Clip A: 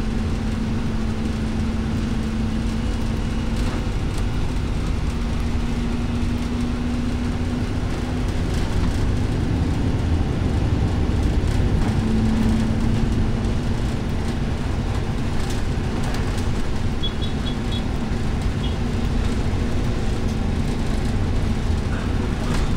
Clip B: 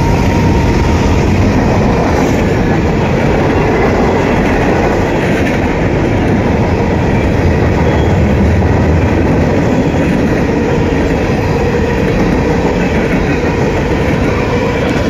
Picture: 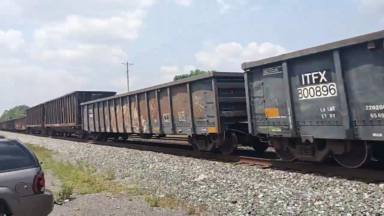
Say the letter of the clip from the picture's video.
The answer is B